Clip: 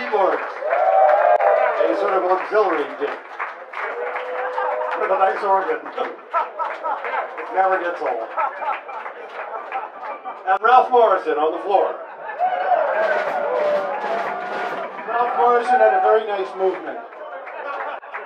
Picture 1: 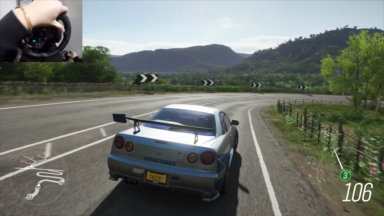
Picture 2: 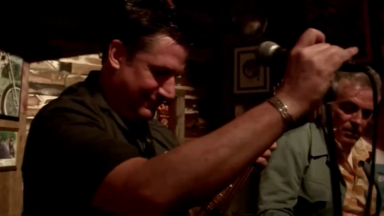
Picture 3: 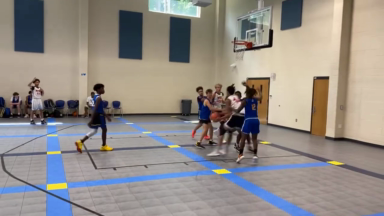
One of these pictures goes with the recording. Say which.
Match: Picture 2